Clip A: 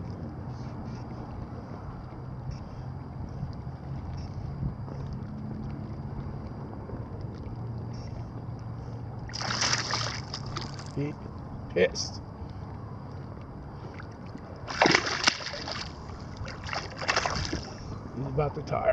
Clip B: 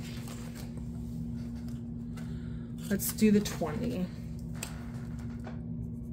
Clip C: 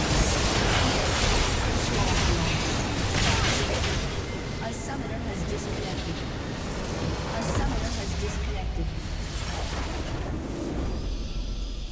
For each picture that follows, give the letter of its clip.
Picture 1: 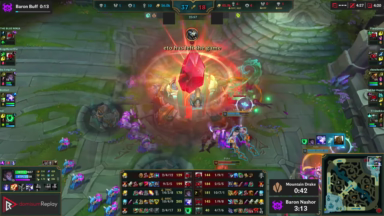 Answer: C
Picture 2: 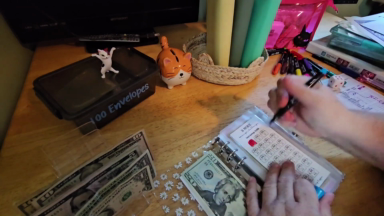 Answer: B